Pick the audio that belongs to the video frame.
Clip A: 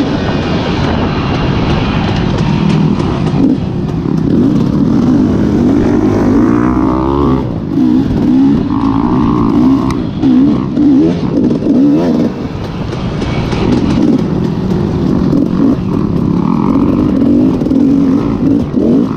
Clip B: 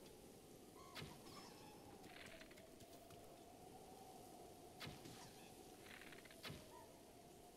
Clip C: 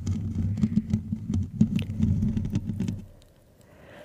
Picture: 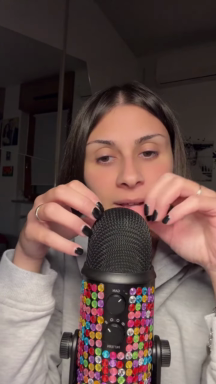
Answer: C